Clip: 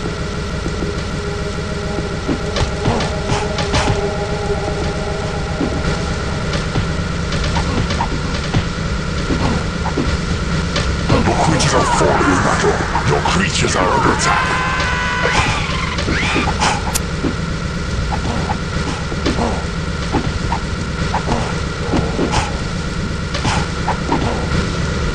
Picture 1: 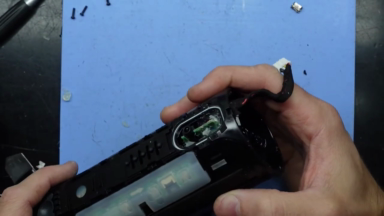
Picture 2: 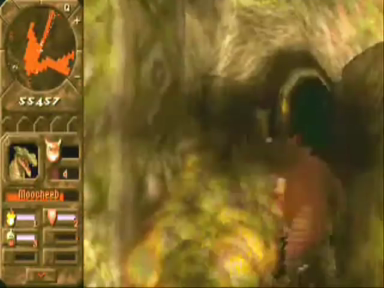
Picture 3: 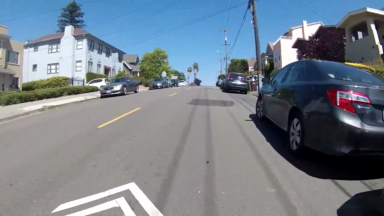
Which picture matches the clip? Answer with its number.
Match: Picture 2